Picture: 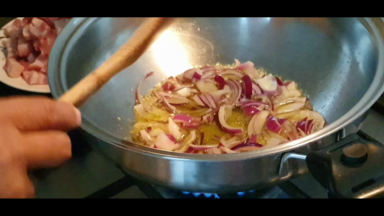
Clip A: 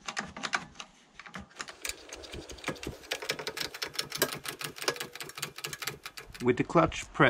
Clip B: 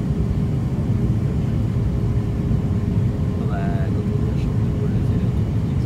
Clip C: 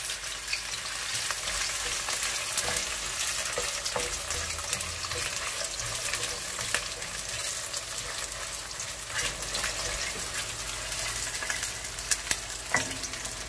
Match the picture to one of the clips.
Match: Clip C